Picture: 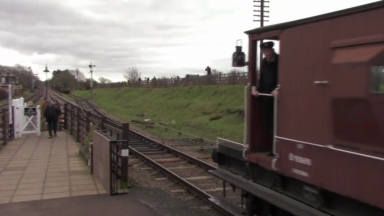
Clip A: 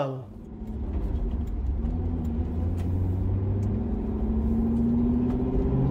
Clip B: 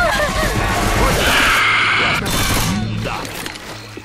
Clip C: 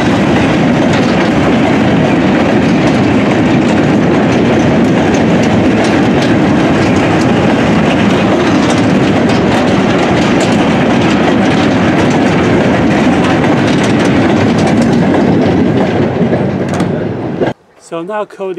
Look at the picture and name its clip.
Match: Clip C